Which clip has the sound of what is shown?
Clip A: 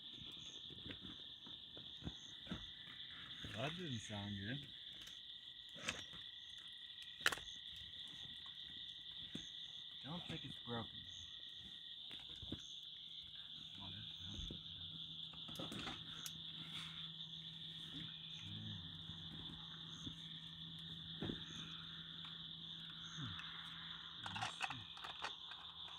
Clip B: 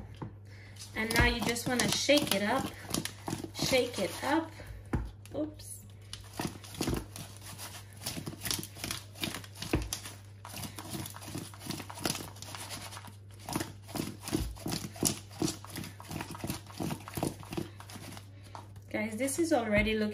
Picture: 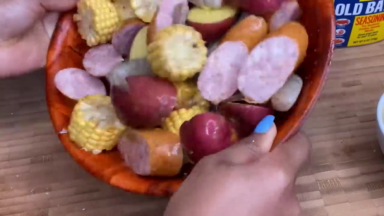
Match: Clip B